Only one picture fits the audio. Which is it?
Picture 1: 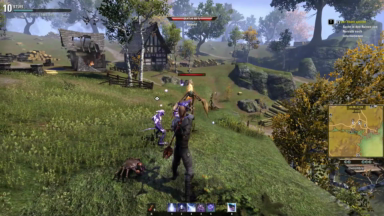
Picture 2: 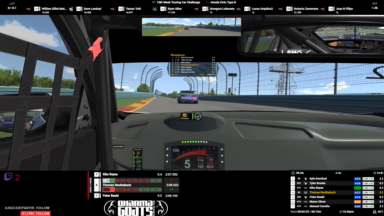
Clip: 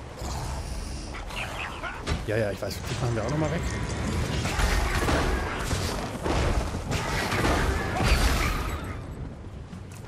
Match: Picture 1